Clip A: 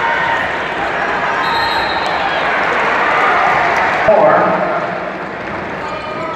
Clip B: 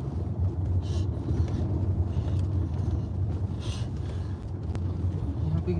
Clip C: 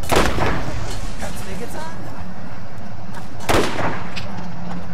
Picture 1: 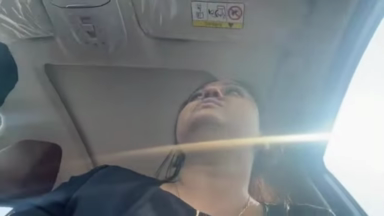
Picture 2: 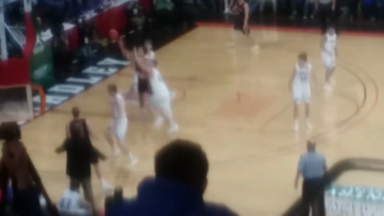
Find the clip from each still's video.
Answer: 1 B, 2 A